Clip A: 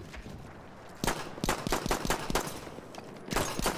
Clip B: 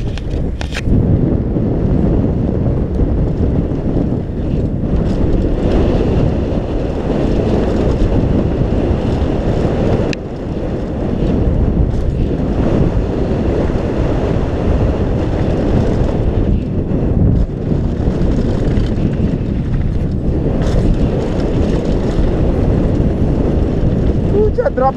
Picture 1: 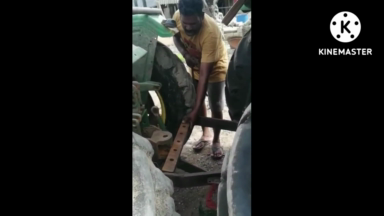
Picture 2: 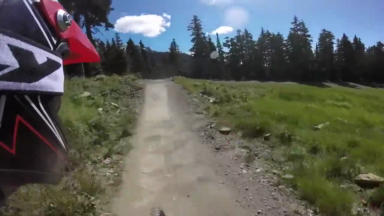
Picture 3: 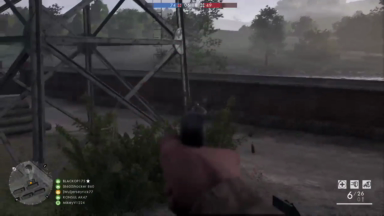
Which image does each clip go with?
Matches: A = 3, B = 2